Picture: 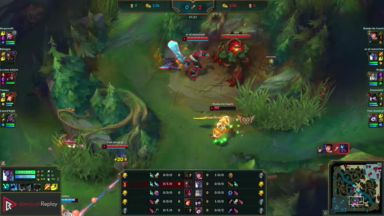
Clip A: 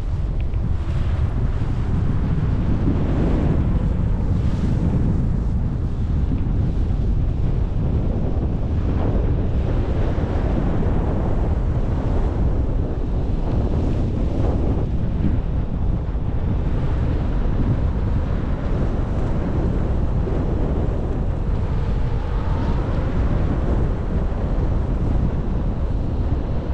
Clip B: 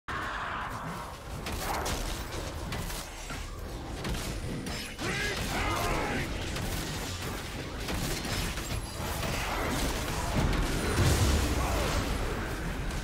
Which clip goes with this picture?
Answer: B